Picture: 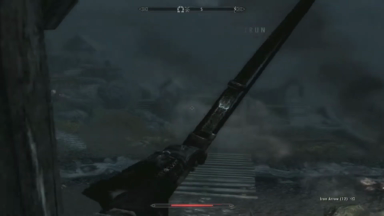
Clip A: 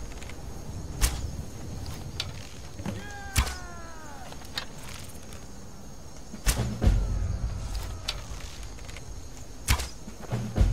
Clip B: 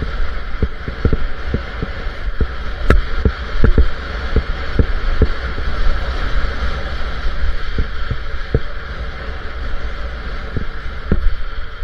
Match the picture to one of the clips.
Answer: A